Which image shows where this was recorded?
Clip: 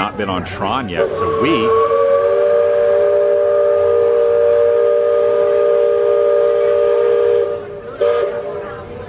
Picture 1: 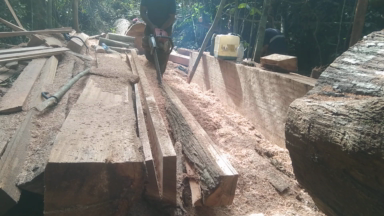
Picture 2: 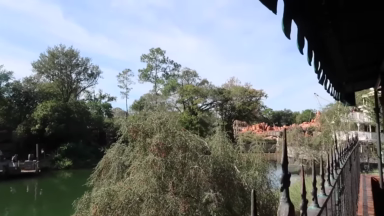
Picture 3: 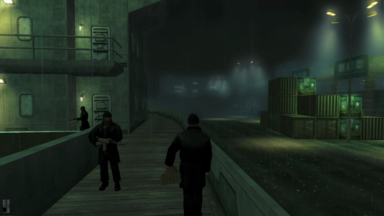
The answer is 2